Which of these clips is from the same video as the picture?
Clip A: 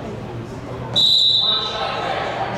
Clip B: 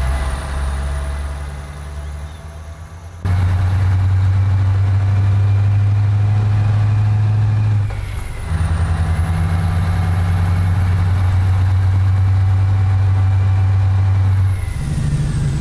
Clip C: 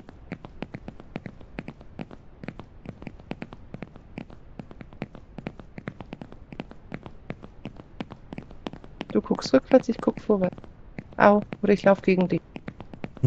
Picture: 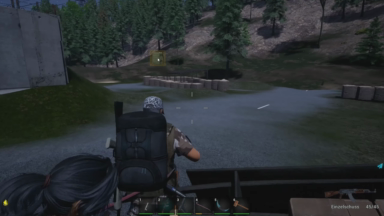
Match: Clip C